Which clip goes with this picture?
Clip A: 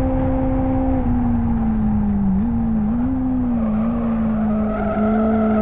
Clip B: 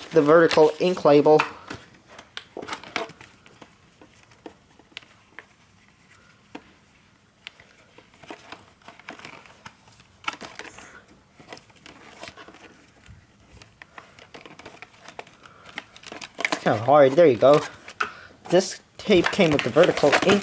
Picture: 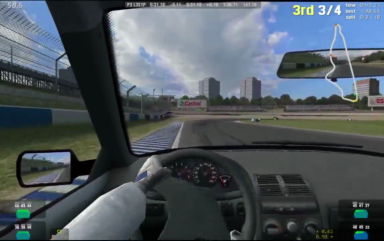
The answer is A